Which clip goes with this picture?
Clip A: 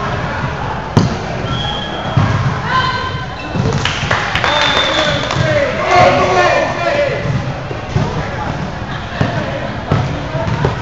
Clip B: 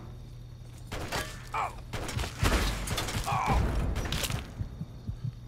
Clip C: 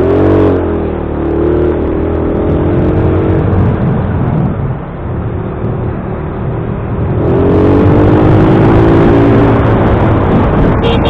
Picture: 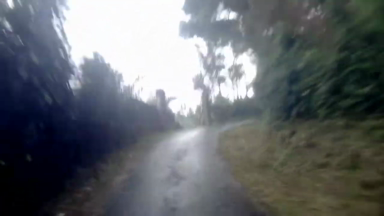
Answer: C